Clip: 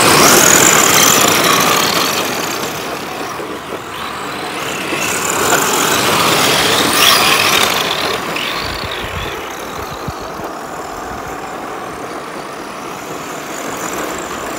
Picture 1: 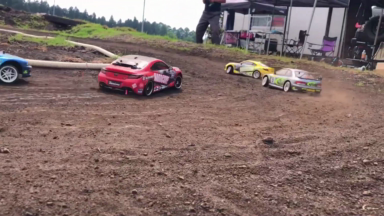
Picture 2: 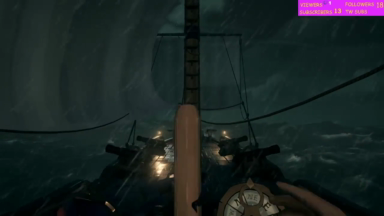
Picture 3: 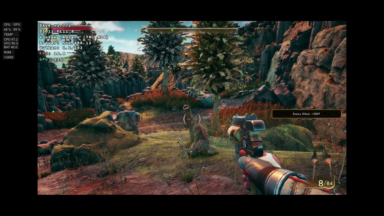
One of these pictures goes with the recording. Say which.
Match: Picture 1